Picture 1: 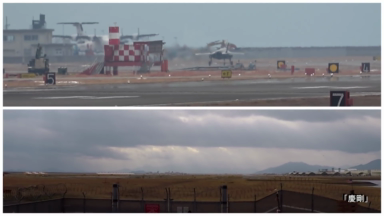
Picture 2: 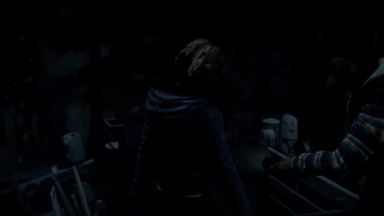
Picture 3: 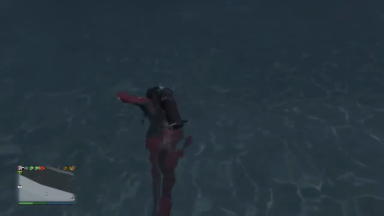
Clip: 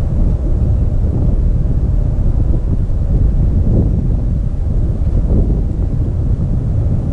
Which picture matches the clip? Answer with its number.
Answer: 1